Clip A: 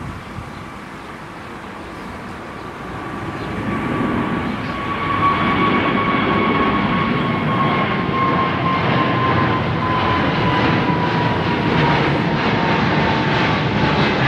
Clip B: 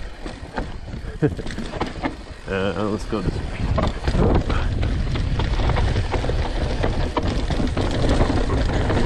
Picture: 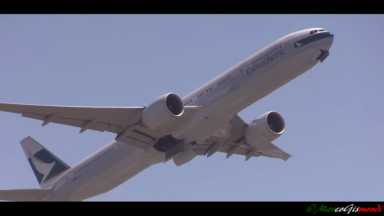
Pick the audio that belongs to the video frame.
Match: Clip A